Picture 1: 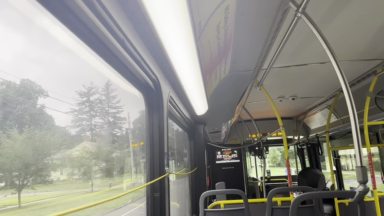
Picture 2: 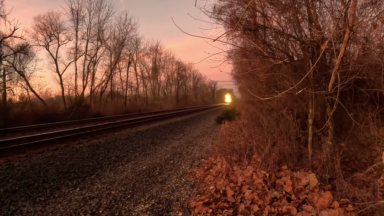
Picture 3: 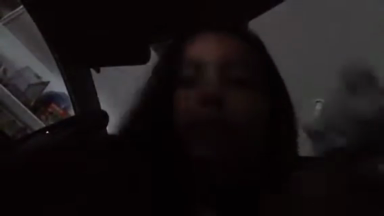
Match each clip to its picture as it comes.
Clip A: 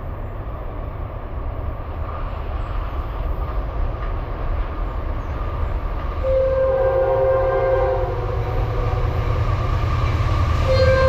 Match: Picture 2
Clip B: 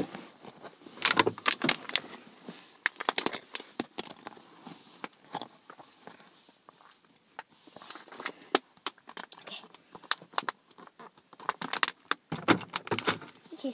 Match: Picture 3